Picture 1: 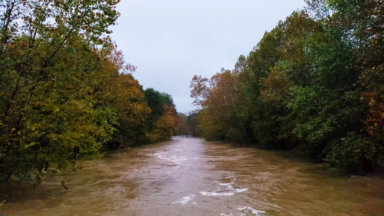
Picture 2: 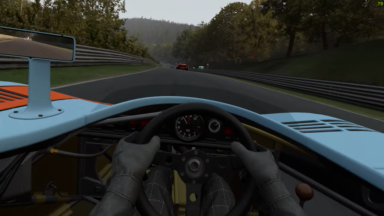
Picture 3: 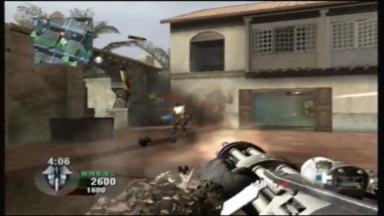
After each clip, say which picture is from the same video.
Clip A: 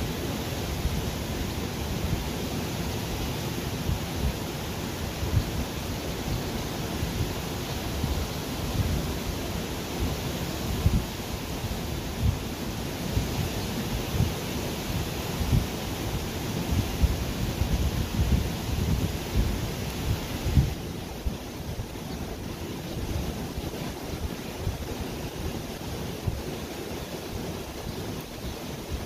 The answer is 1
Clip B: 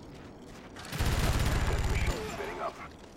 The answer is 3